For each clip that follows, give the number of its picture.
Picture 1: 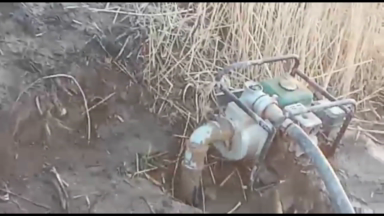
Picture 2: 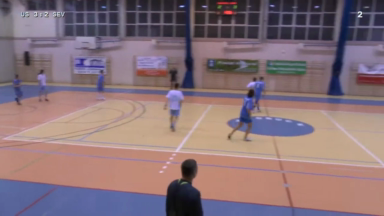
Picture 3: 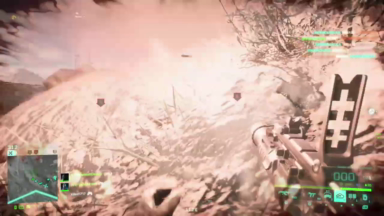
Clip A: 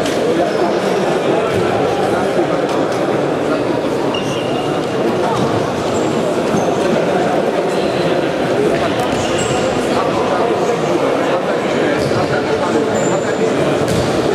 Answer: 2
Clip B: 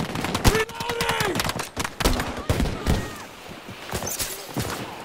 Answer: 3